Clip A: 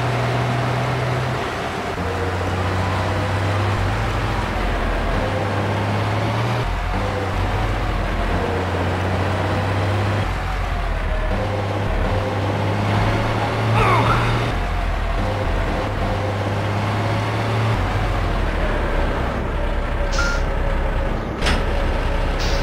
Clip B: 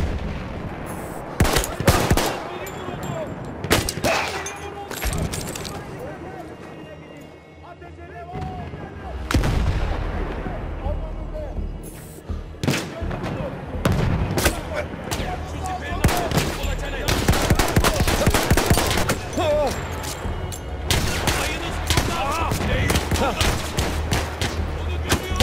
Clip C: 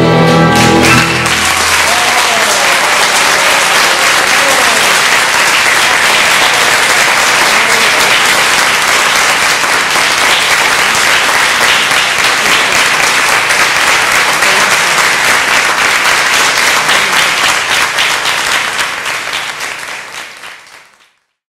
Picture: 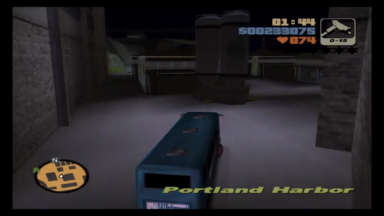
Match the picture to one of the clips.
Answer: A